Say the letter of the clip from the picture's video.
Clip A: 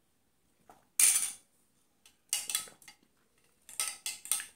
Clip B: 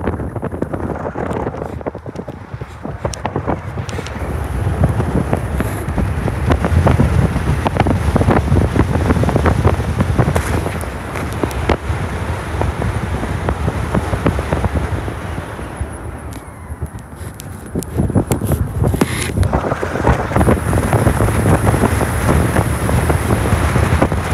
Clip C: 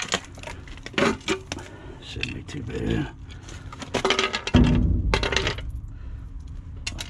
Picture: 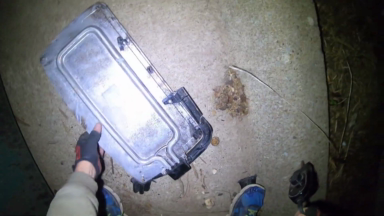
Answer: C